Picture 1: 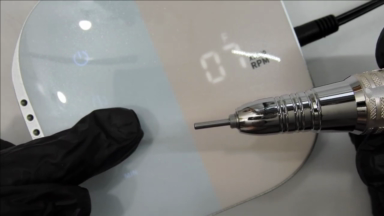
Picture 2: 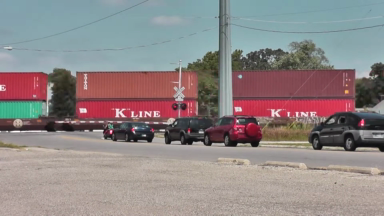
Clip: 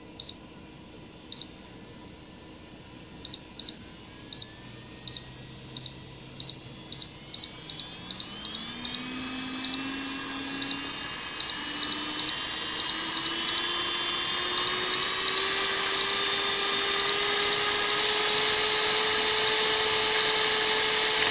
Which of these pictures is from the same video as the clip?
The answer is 1